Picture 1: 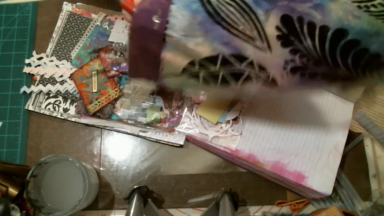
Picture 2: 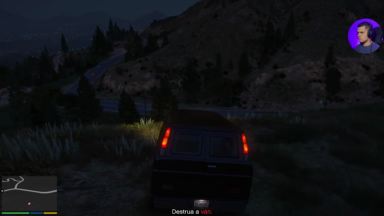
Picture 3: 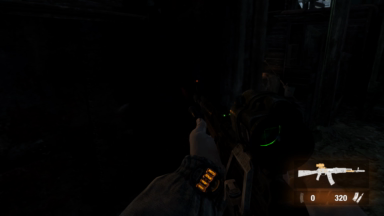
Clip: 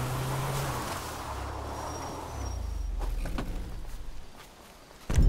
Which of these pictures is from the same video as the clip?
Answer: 2